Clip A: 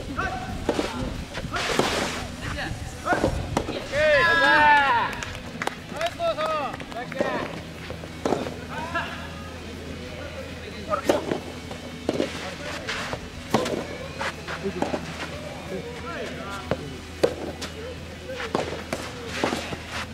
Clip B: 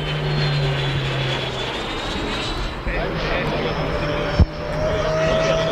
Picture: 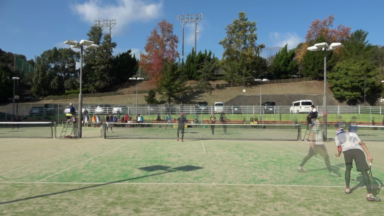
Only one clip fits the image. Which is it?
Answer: A